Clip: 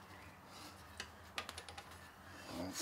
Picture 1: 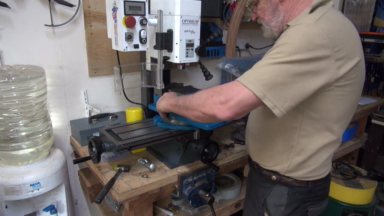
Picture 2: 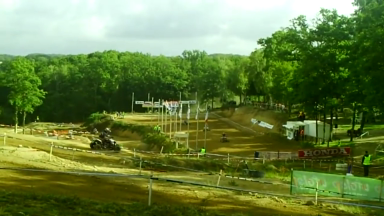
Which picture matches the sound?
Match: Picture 1